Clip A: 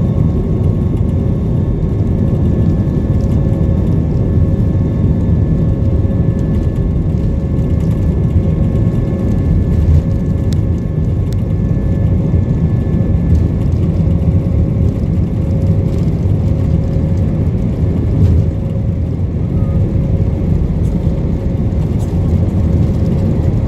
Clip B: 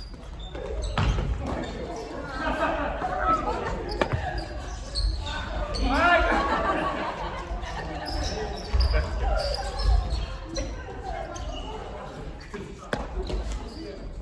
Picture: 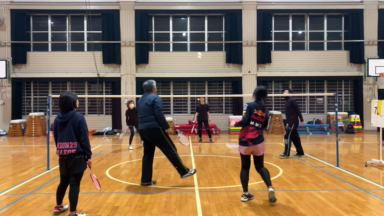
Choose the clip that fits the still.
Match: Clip B